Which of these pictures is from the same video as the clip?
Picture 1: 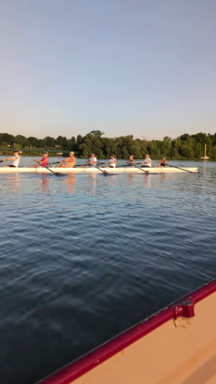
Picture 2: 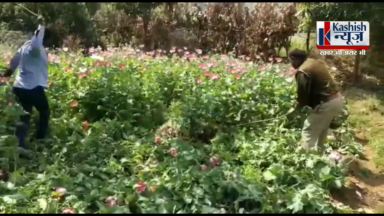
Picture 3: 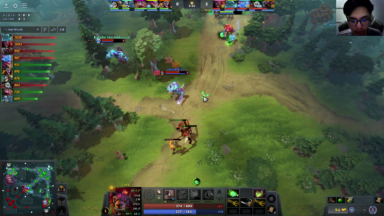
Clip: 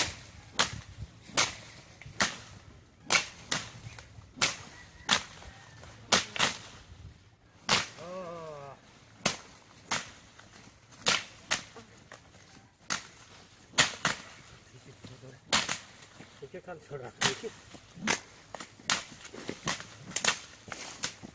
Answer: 2